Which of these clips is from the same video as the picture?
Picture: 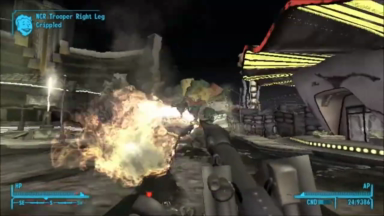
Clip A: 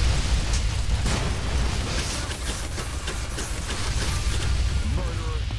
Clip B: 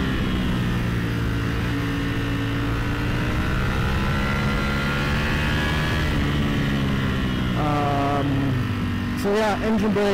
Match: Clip A